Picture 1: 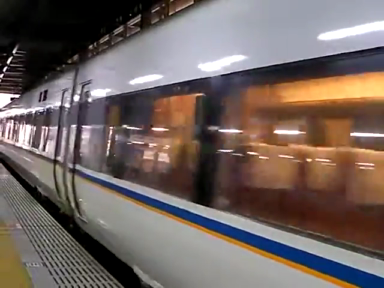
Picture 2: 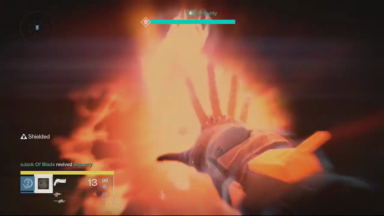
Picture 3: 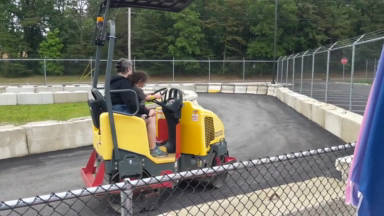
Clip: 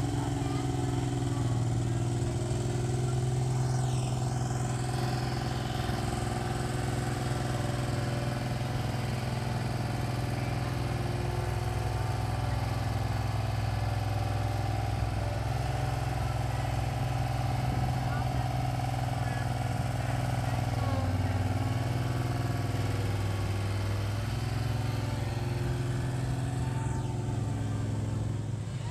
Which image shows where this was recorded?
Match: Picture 3